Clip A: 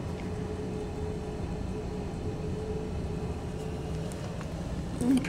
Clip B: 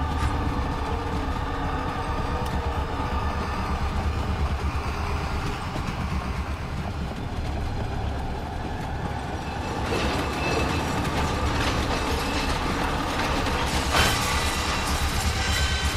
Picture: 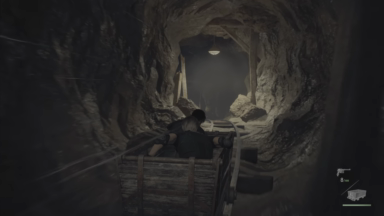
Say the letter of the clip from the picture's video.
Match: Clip B